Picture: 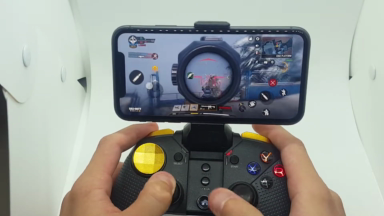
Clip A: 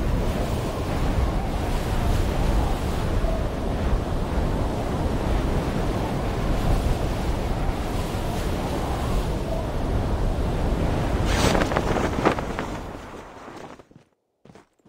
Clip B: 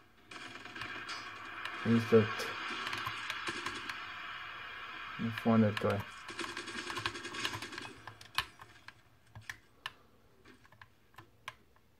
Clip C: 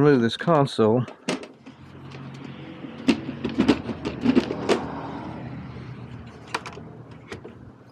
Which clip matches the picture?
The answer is B